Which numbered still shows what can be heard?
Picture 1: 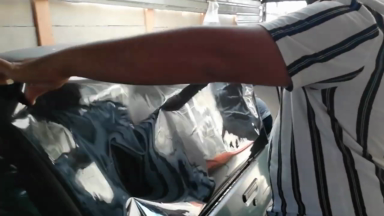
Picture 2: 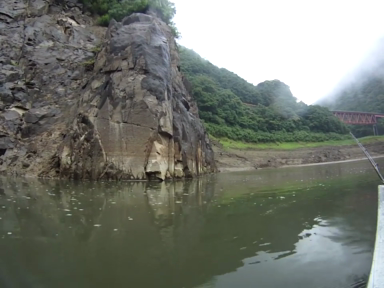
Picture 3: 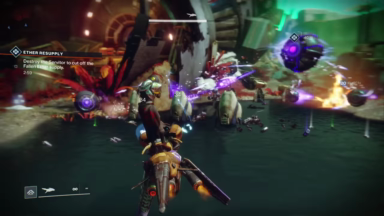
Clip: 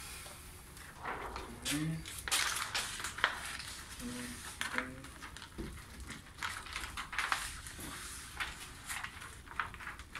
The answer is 1